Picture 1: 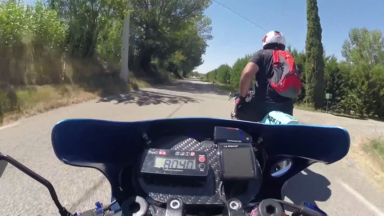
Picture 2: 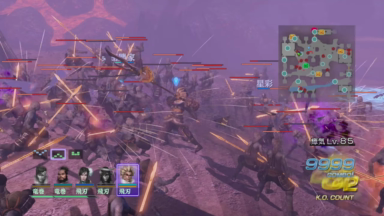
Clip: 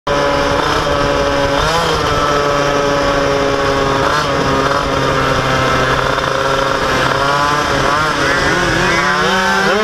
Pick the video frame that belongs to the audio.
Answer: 1